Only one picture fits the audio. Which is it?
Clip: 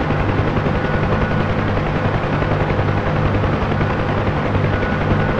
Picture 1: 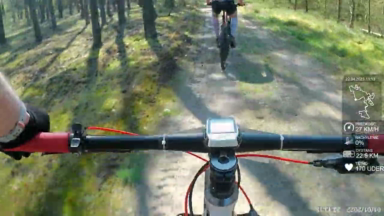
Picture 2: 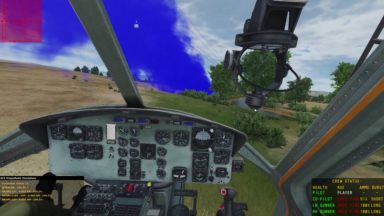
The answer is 2